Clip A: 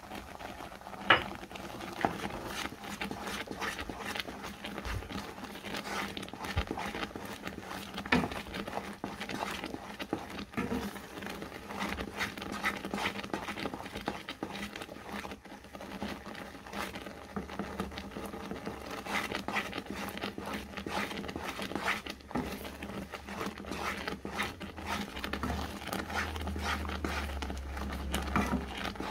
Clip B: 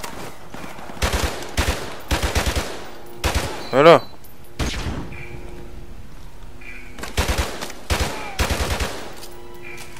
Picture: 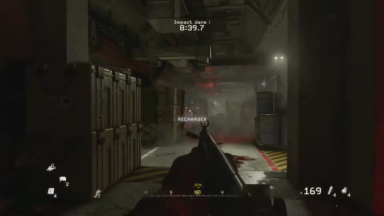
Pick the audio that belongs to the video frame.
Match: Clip B